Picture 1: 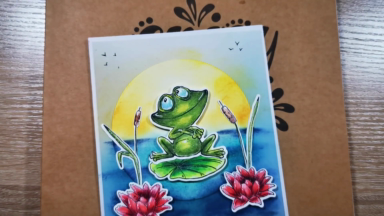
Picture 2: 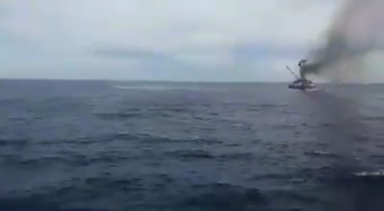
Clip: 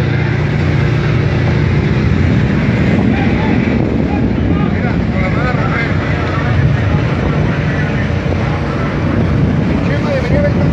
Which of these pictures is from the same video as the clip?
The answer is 2